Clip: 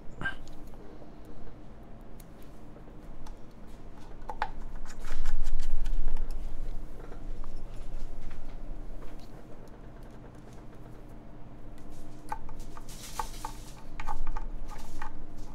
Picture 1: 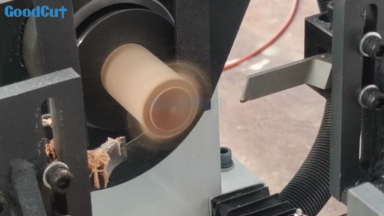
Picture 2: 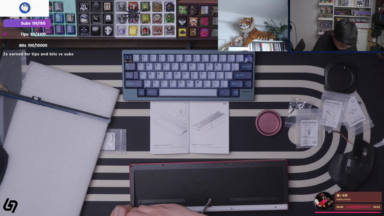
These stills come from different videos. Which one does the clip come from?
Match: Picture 2